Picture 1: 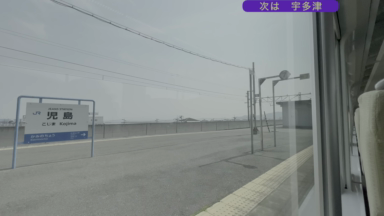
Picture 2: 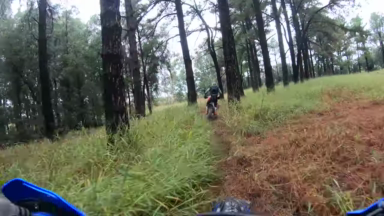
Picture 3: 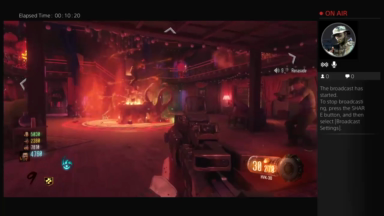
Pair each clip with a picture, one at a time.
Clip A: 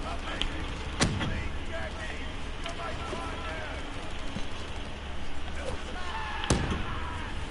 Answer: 3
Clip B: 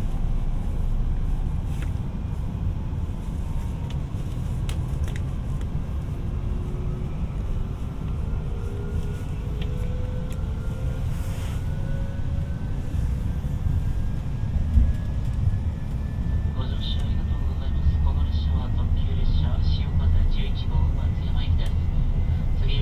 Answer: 1